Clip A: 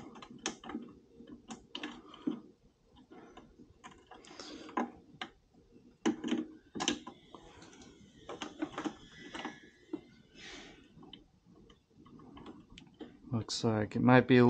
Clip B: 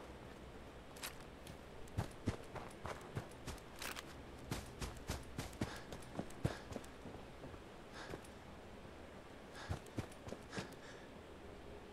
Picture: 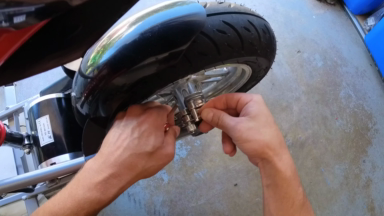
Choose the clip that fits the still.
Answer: A